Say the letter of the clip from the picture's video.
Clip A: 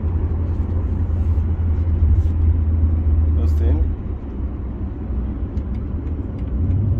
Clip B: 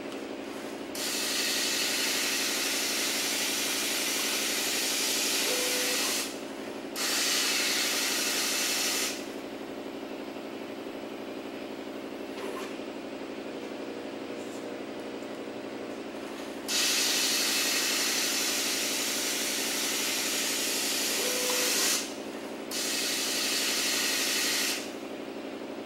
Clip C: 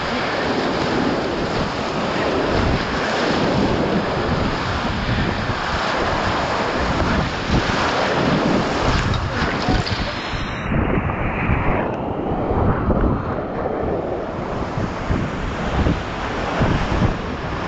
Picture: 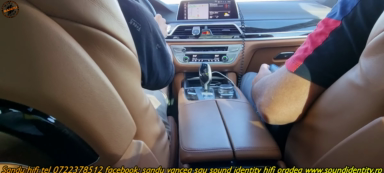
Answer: A